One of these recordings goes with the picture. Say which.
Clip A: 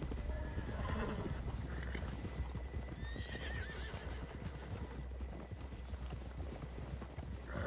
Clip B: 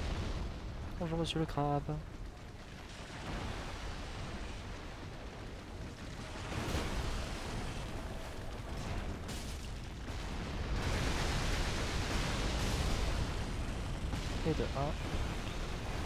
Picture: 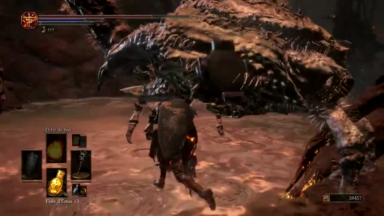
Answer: B